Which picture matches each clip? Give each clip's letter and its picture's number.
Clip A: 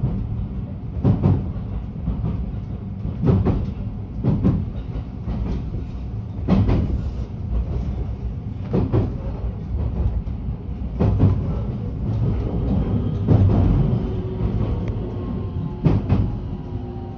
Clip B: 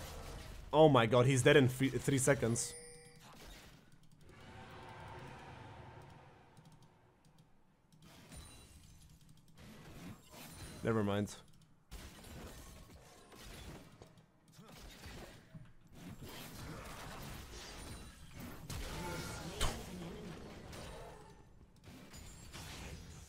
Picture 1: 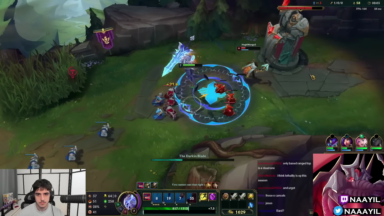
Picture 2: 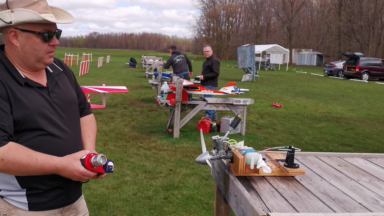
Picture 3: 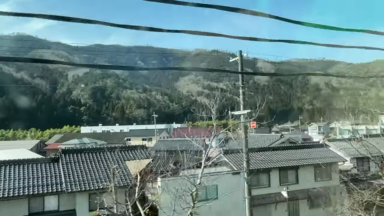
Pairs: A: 3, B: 1